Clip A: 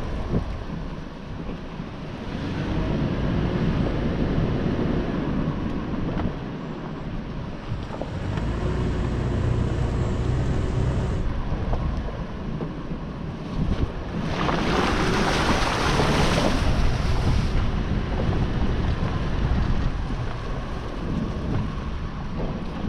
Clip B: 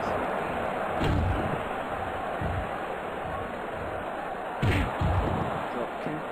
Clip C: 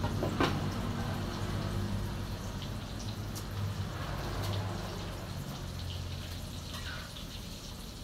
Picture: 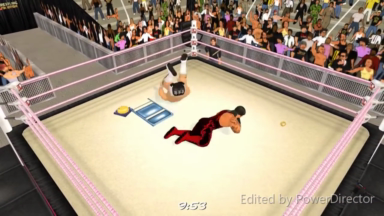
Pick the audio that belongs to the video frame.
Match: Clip B